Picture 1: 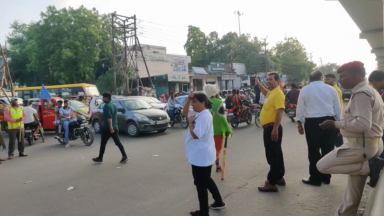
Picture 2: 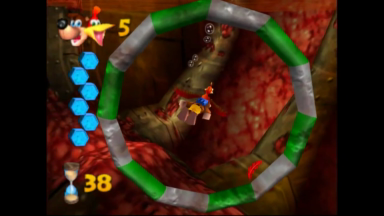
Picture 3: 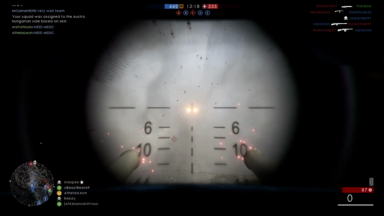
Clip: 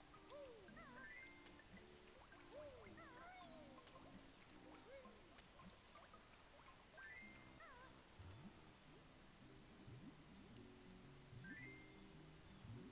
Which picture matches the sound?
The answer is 2